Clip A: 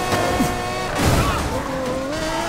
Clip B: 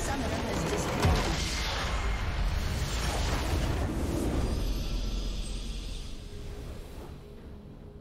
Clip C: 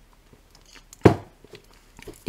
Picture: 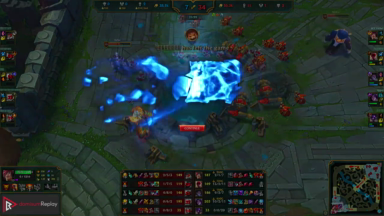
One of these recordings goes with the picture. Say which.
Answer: B